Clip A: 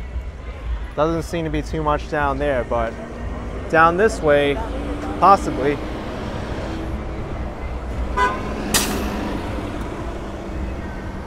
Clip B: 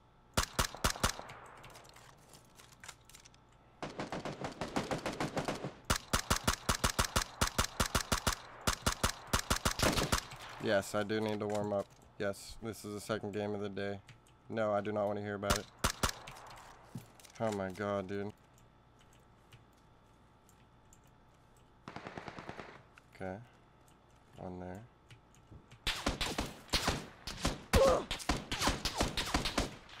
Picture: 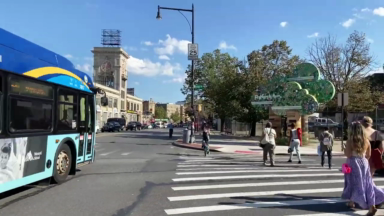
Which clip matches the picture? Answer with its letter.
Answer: A